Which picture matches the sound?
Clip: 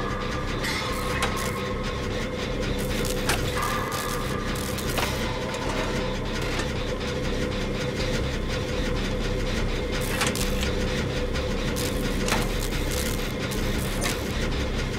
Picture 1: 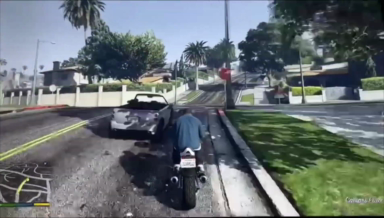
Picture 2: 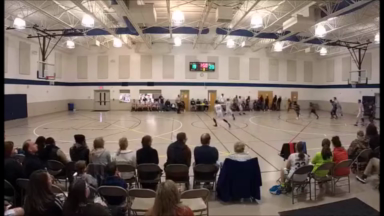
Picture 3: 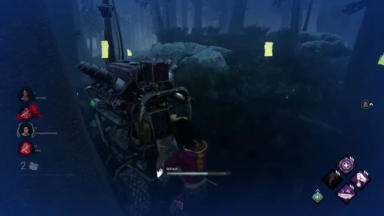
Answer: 3